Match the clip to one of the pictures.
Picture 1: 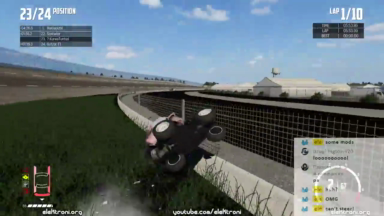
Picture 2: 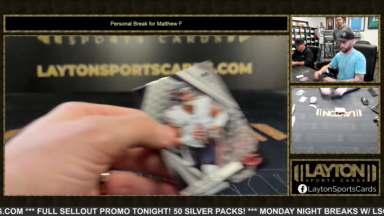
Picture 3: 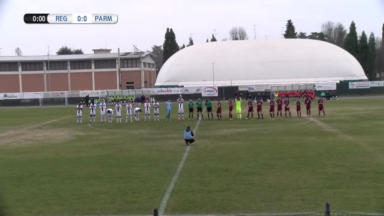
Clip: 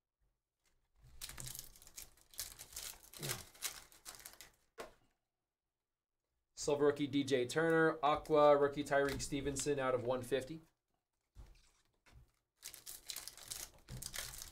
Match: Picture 2